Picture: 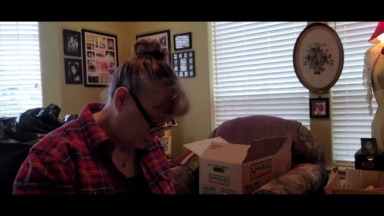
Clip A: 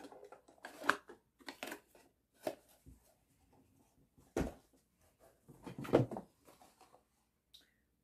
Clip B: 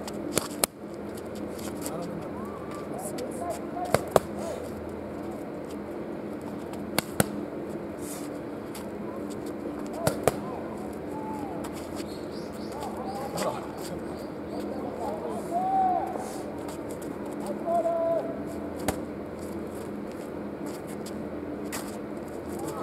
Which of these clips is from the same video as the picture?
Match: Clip A